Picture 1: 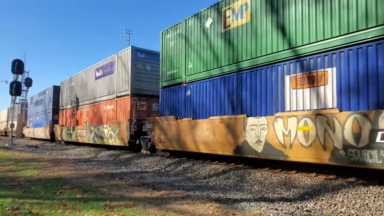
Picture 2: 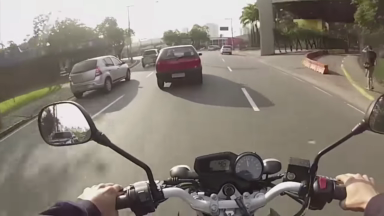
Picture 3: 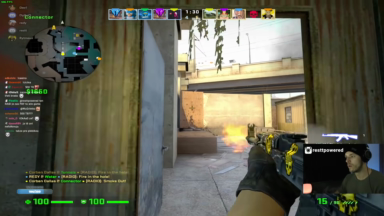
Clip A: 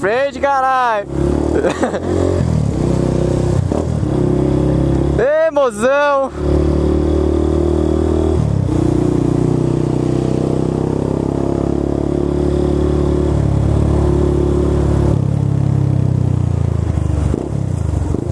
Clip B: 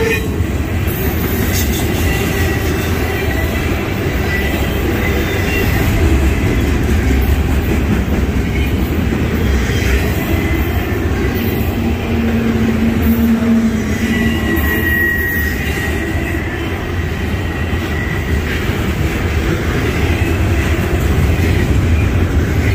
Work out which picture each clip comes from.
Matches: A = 2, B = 1